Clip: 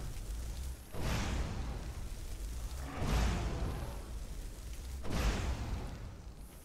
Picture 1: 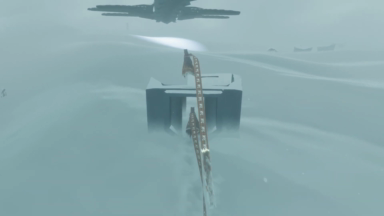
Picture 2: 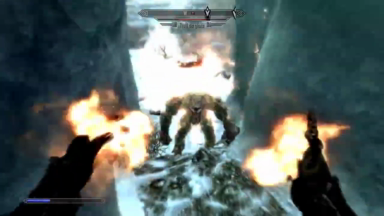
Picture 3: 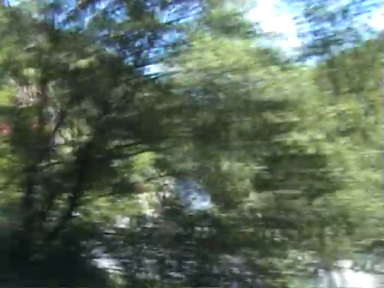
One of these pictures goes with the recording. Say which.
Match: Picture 2